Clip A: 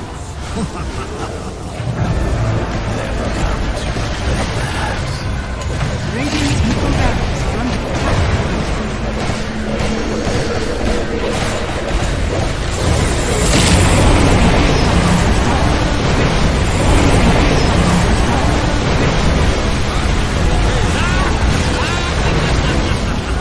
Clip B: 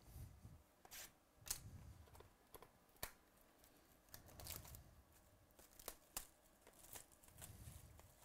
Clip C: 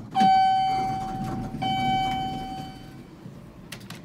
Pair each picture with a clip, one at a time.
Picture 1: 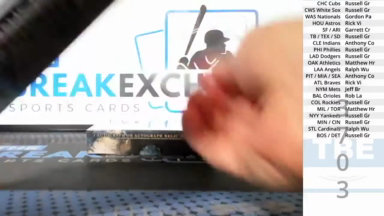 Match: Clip B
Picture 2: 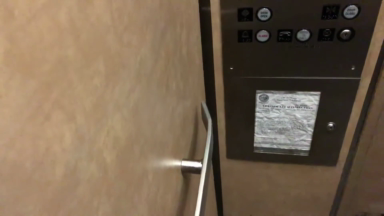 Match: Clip C